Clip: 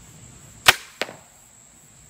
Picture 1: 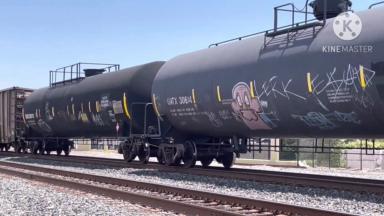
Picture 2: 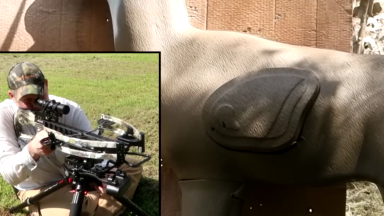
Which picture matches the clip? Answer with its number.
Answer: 2